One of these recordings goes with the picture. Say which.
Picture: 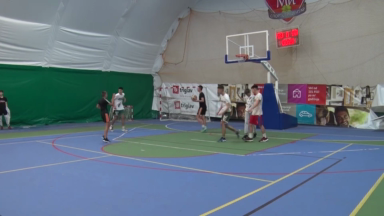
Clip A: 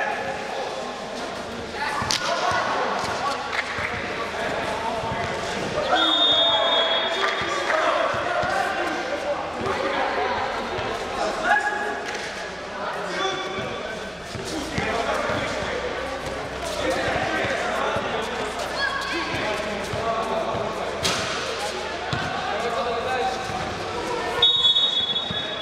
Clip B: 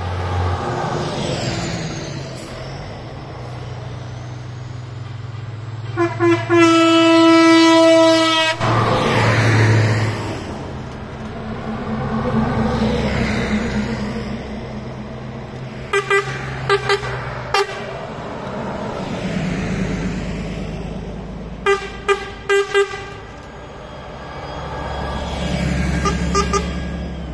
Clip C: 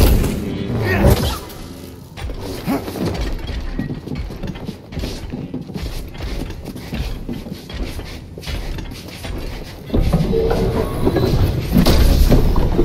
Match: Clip A